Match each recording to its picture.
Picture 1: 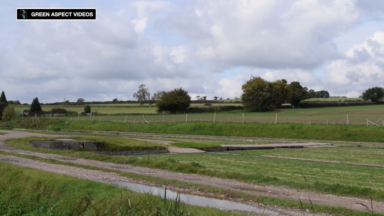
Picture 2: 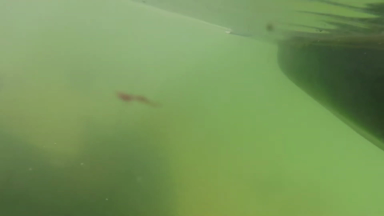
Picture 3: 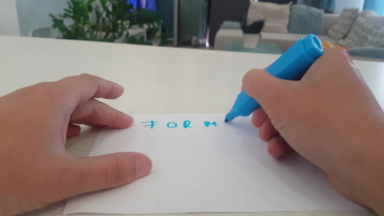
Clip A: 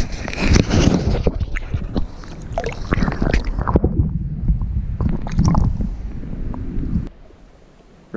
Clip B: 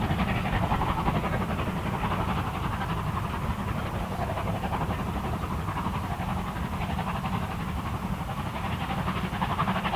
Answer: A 2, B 1